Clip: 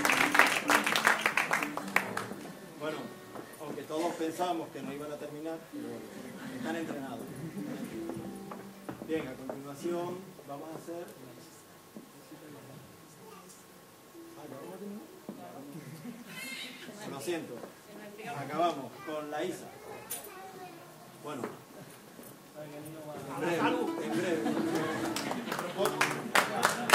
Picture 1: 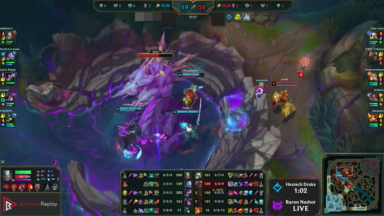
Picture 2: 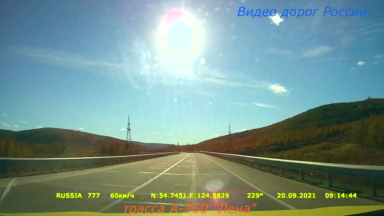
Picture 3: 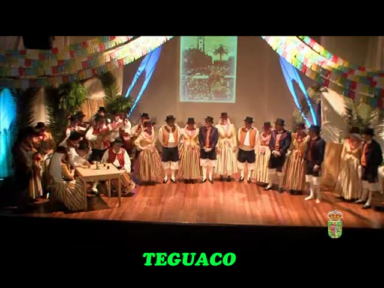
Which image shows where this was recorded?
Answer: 3